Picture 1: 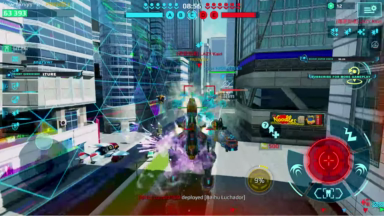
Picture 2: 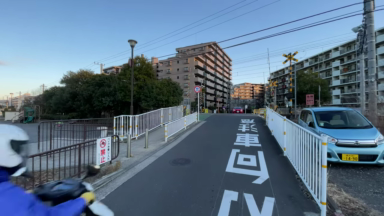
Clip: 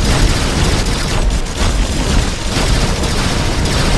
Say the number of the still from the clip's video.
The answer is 1